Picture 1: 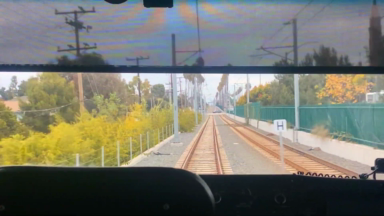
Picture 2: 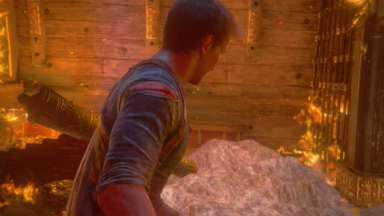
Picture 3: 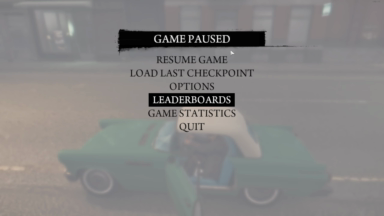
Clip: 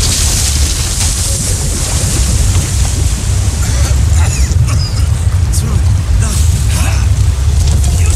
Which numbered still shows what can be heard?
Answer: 2